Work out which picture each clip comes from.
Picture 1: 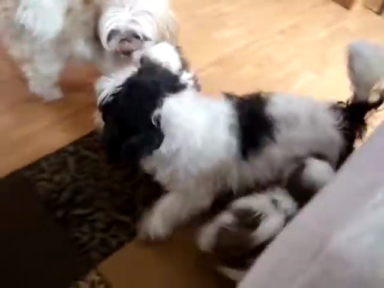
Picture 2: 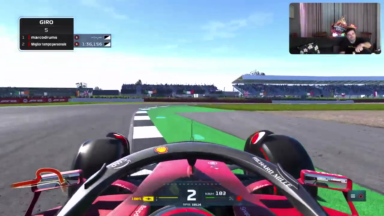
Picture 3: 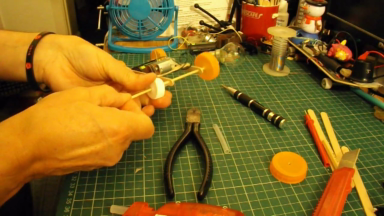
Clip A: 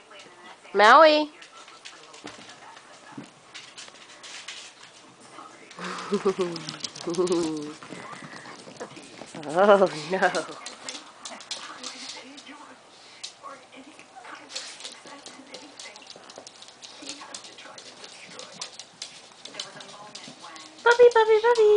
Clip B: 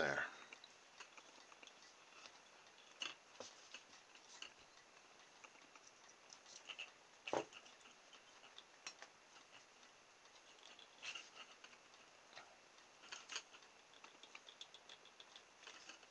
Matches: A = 1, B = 3